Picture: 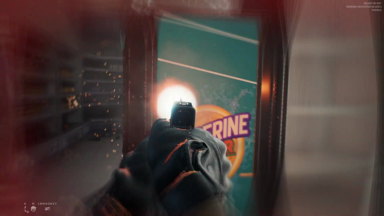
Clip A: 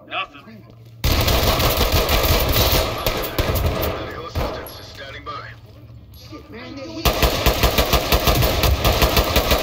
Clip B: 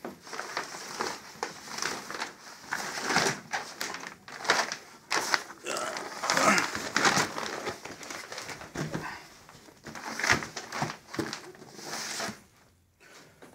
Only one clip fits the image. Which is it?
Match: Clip A